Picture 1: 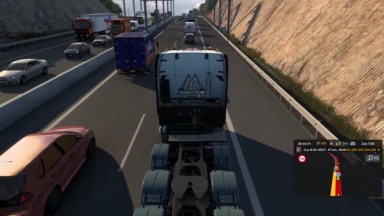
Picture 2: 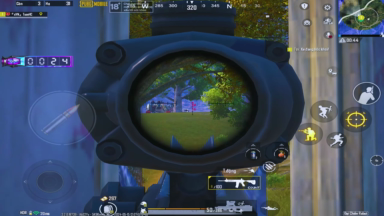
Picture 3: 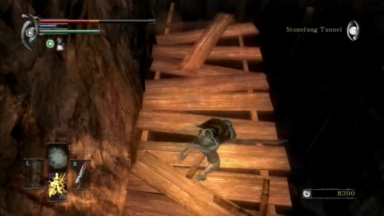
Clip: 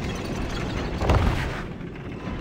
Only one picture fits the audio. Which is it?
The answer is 3